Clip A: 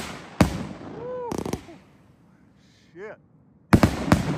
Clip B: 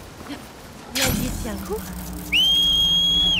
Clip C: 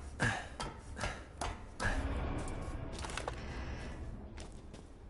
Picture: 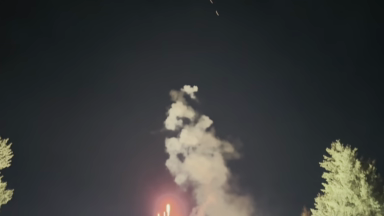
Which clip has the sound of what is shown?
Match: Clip A